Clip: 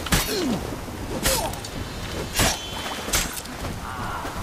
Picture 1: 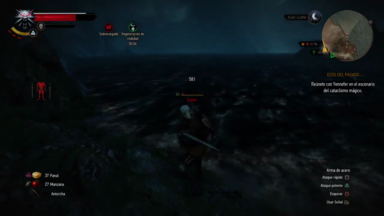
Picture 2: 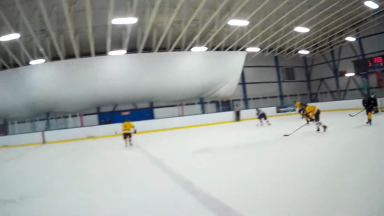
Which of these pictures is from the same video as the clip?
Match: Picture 1